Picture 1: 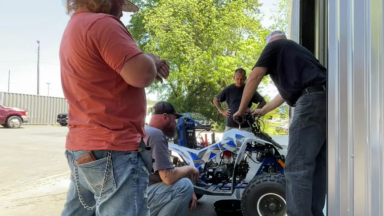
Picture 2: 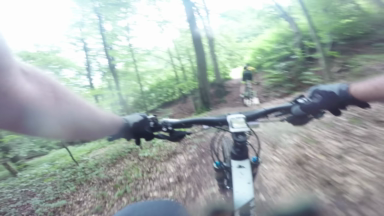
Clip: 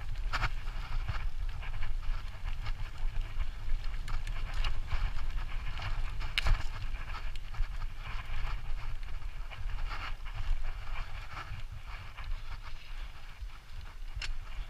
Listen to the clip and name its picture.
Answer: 2